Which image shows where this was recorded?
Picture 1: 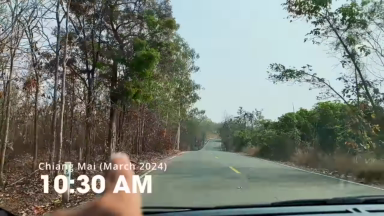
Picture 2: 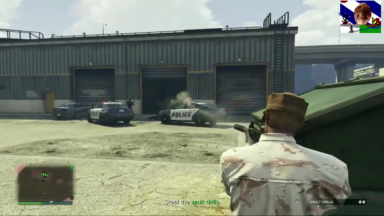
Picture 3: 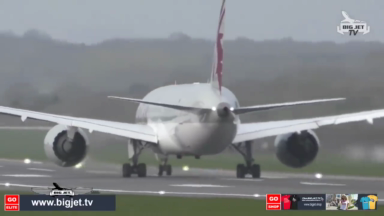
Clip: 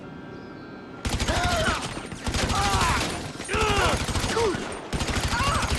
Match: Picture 2